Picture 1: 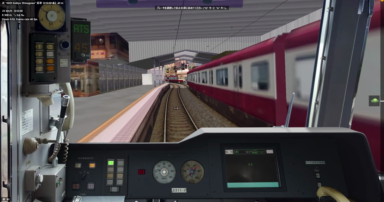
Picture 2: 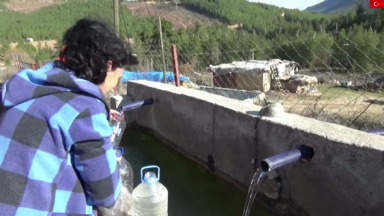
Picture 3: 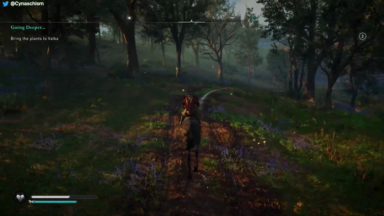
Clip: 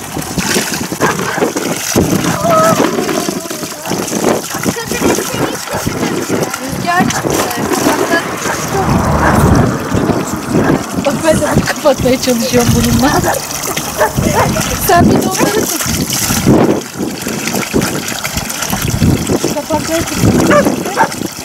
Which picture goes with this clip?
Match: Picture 2